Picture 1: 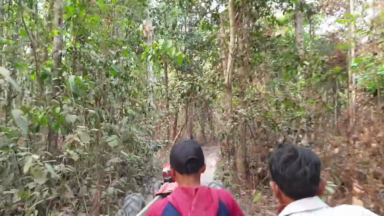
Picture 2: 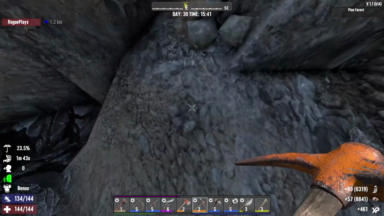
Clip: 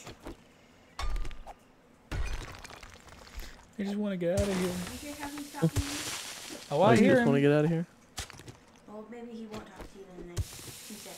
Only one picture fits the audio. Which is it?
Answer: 2